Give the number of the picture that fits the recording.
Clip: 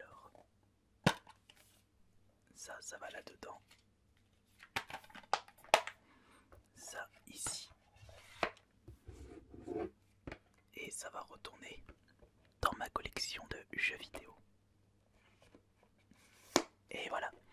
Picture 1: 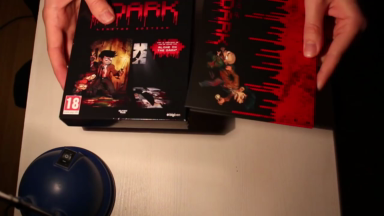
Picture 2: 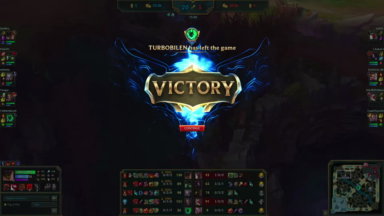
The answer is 1